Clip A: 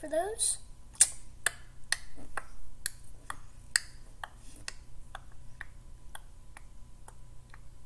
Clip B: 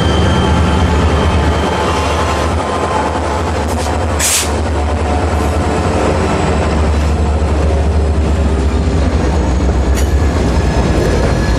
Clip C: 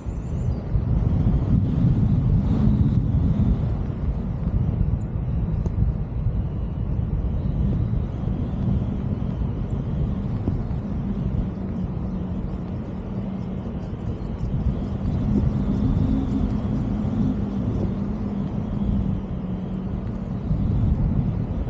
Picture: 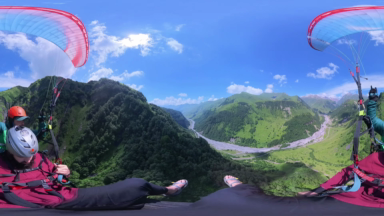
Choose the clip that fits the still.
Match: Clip C